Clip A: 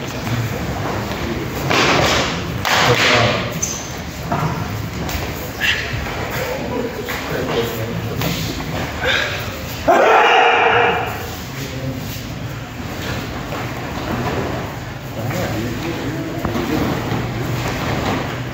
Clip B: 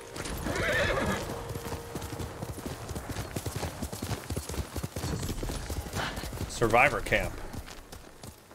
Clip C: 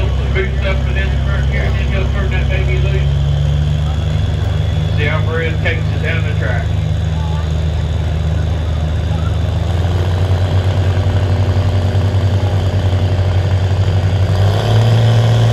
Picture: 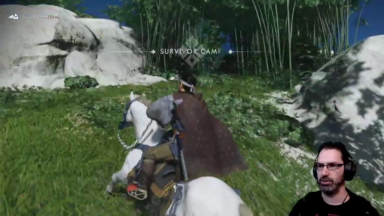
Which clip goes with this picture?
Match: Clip B